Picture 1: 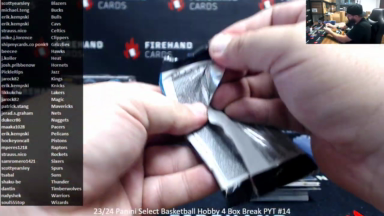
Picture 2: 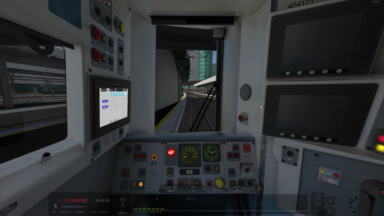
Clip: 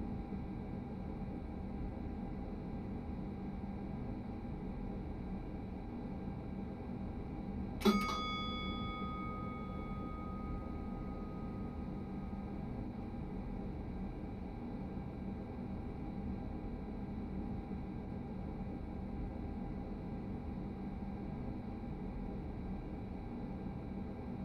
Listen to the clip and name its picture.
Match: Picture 2